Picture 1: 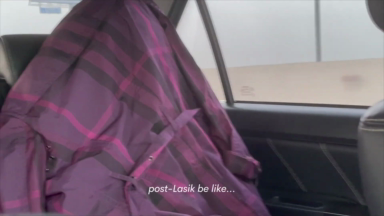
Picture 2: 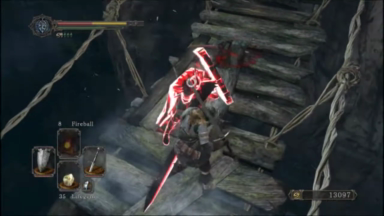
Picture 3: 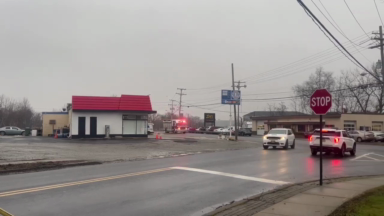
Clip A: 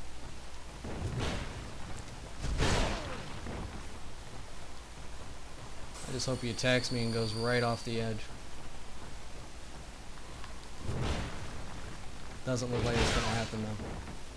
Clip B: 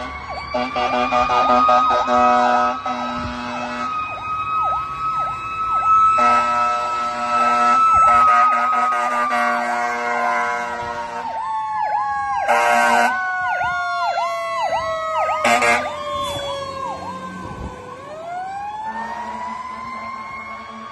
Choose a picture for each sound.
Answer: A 2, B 3